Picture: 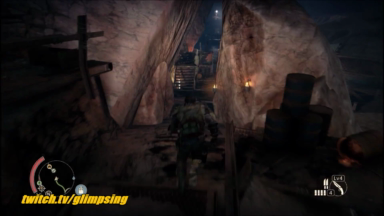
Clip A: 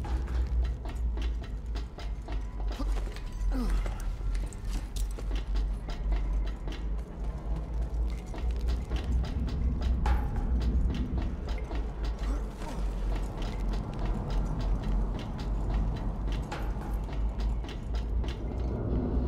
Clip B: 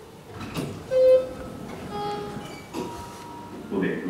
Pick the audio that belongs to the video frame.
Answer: A